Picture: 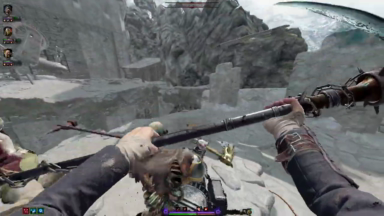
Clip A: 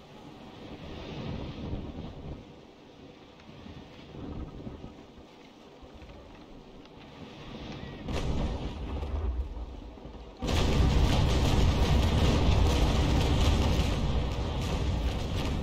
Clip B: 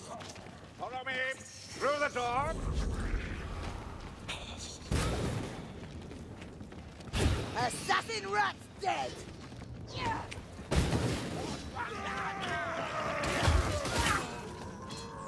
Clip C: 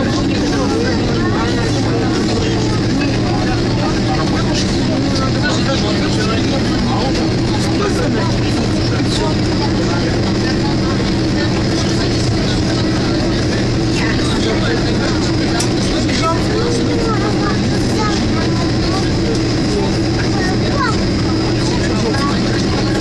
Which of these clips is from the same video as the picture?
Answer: B